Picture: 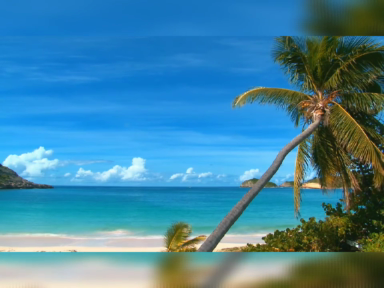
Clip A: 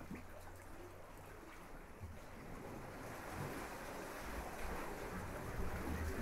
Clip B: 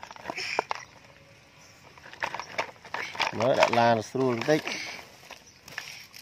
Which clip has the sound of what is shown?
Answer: A